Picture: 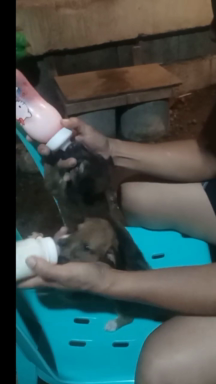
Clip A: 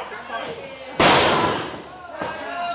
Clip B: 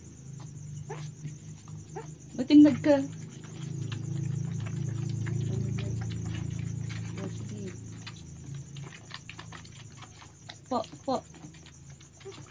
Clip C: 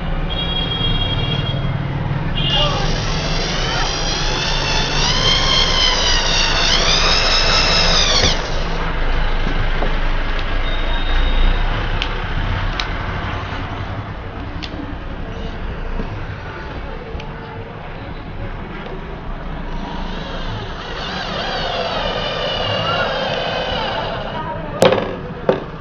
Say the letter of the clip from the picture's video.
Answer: B